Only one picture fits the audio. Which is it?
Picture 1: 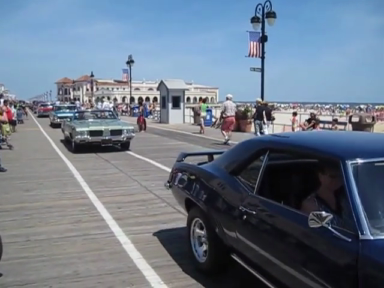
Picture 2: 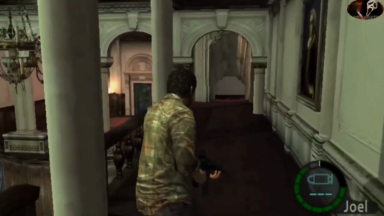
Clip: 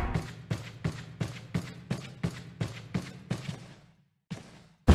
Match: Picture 2